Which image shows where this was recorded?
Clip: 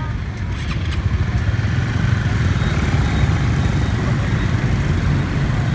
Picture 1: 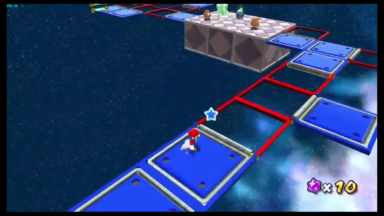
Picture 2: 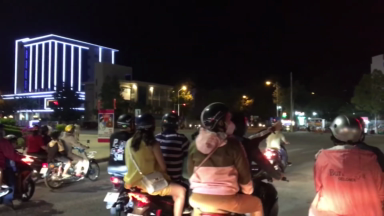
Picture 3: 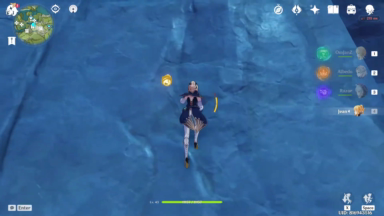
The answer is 2